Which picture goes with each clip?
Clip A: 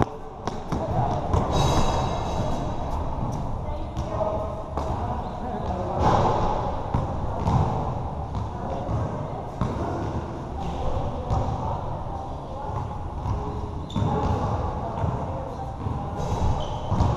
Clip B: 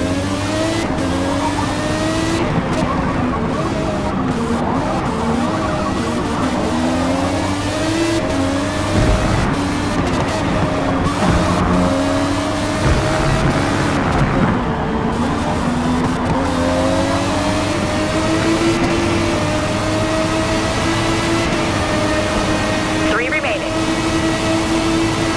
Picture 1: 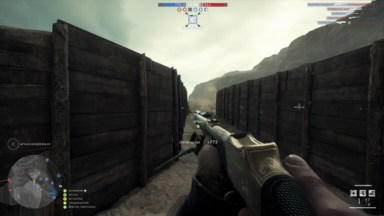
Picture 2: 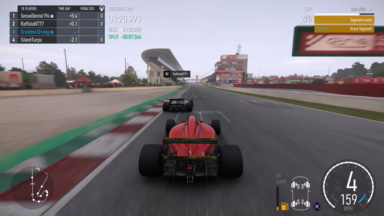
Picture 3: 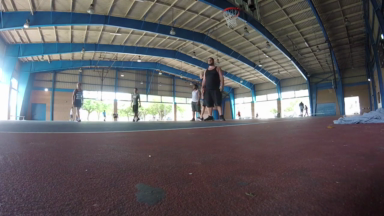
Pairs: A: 3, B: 2